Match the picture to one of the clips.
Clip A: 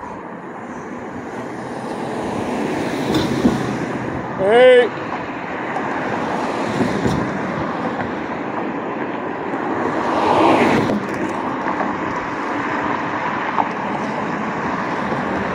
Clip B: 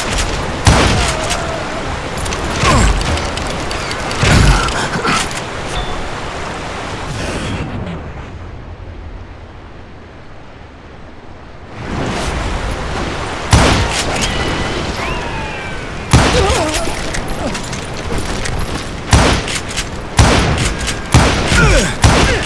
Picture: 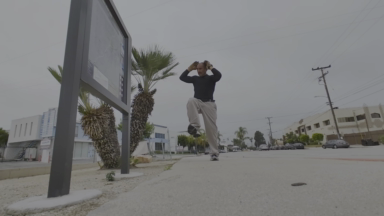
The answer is A